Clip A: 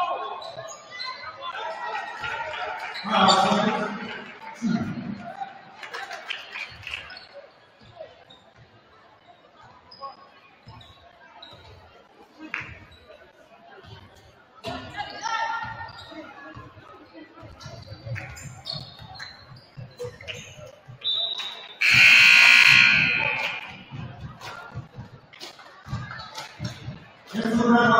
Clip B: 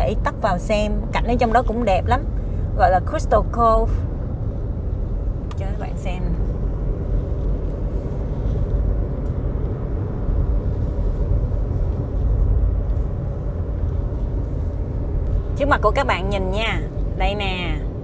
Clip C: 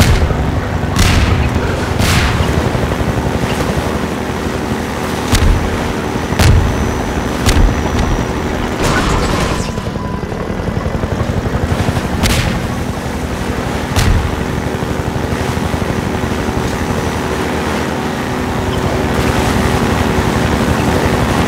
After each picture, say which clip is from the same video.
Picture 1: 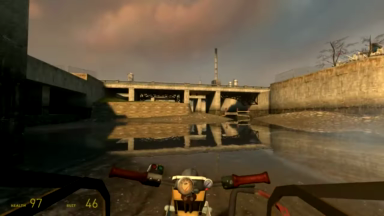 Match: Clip C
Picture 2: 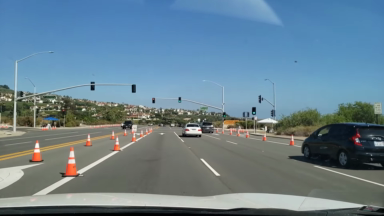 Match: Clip B